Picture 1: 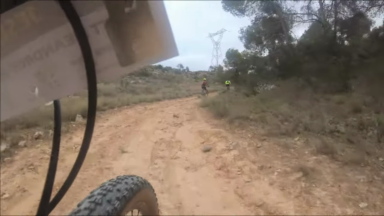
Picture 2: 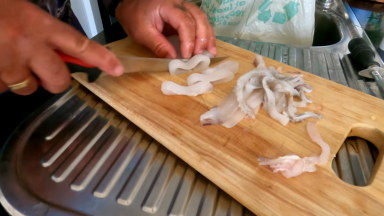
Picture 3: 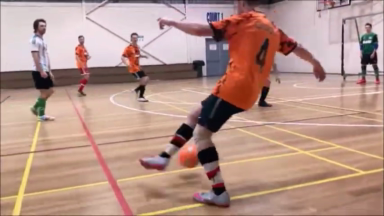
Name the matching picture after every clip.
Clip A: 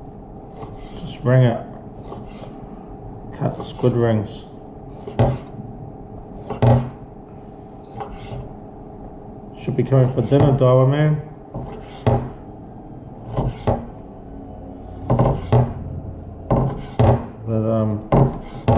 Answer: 2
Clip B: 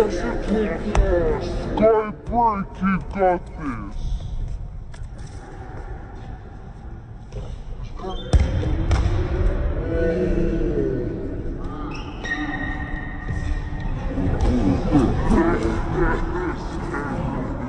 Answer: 3